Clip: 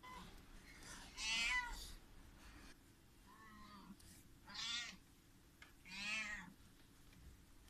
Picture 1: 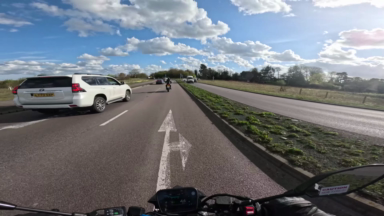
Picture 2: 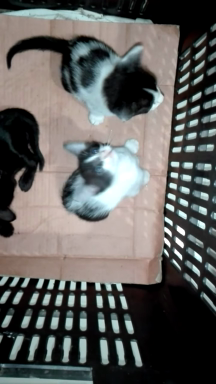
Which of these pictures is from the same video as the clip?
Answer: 2